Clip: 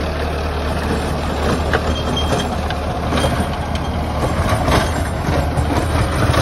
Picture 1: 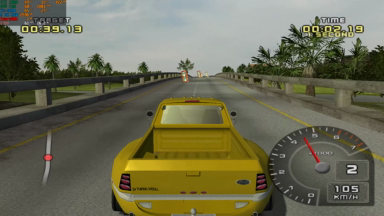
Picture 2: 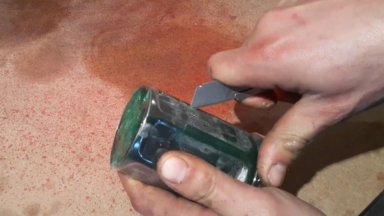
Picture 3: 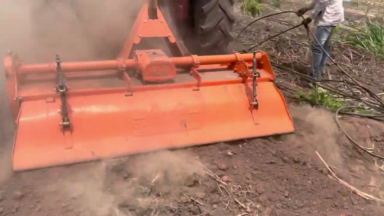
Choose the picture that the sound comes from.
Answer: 3